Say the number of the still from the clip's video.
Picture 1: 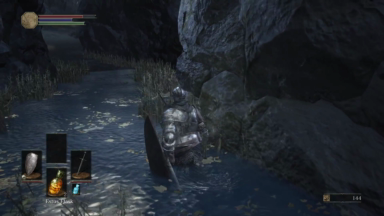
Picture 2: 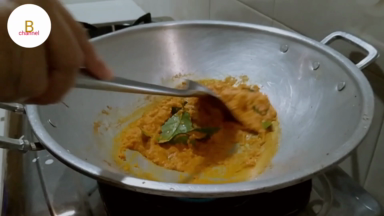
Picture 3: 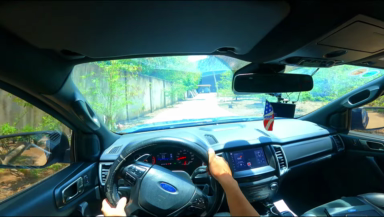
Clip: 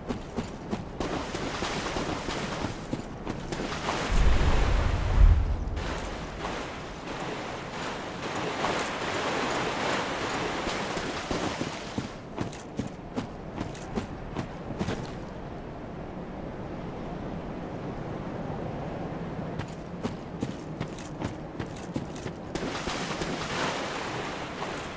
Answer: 1